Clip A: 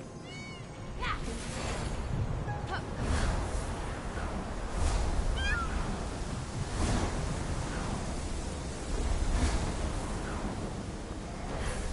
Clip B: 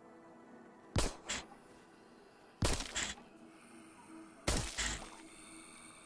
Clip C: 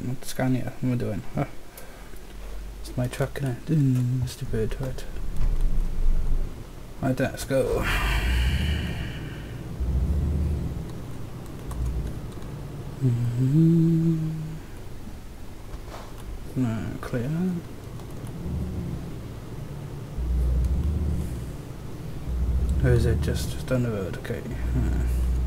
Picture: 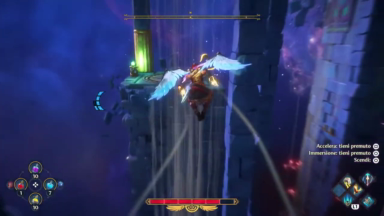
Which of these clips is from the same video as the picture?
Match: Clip A